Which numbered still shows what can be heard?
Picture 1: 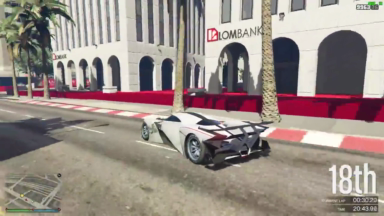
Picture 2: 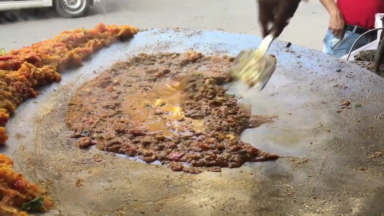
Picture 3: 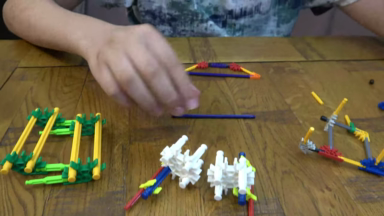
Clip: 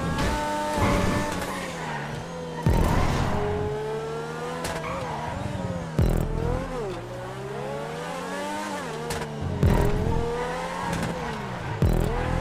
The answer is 1